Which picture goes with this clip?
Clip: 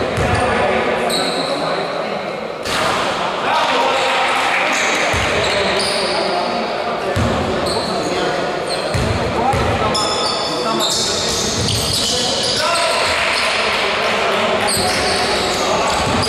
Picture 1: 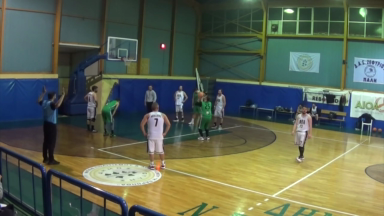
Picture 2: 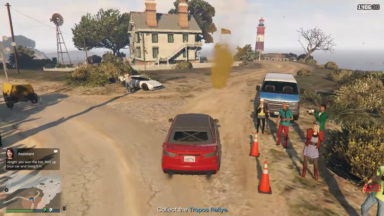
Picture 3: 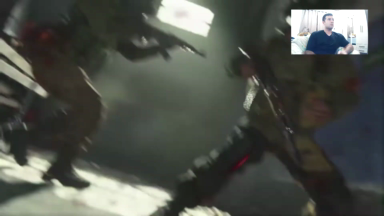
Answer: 1